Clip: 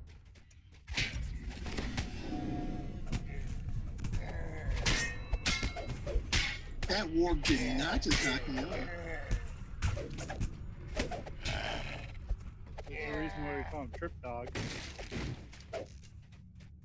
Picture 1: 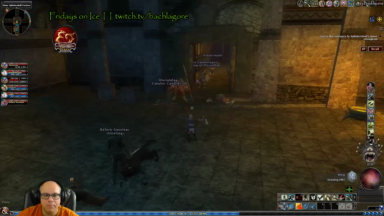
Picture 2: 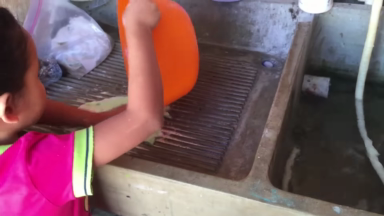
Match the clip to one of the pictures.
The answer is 1